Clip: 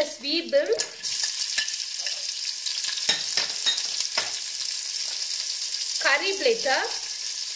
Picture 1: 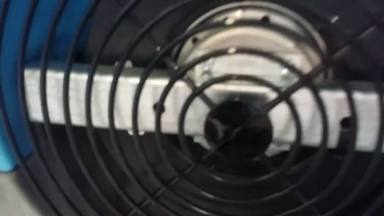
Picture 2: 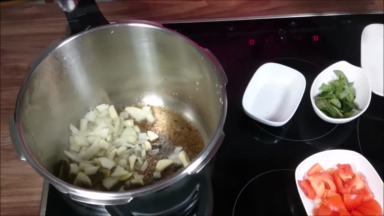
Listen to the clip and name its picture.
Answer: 2